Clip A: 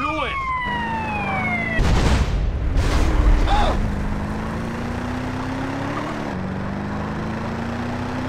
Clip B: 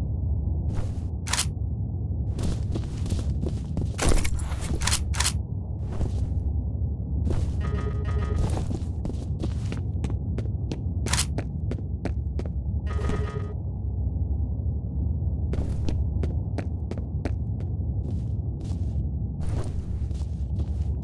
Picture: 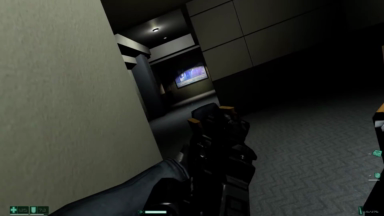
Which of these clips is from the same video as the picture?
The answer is B